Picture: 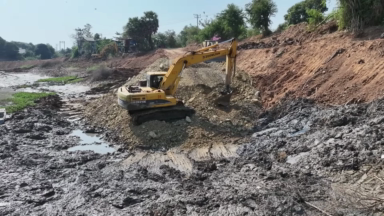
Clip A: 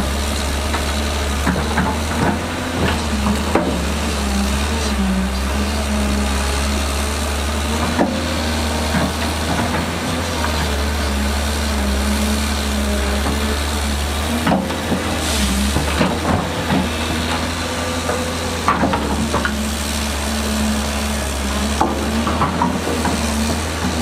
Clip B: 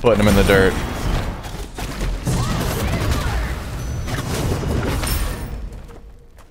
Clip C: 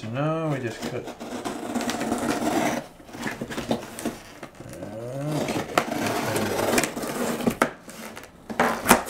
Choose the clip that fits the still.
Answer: A